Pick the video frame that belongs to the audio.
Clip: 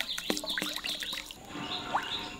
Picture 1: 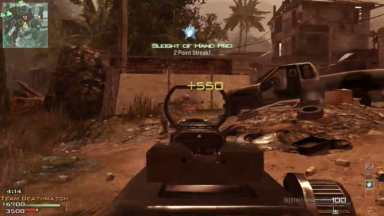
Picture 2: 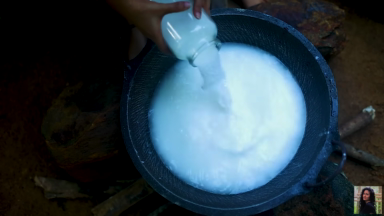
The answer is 2